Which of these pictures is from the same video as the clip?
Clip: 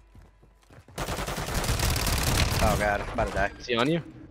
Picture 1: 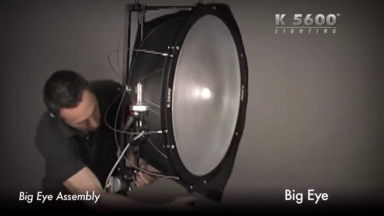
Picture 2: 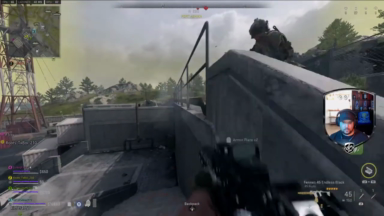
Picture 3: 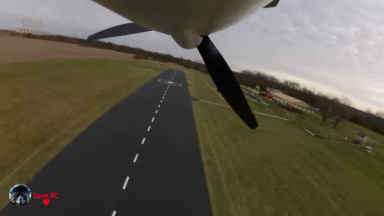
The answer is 2